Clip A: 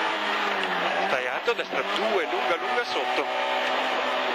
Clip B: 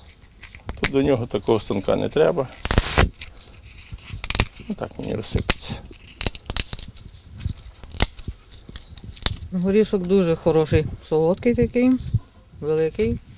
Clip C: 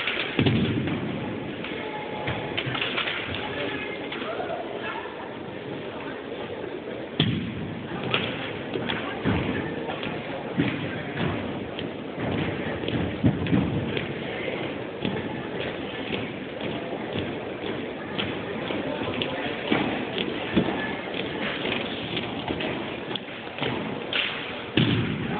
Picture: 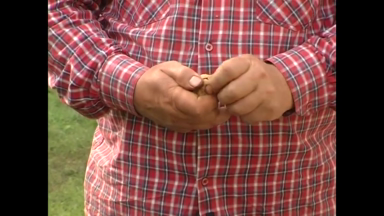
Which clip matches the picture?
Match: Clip B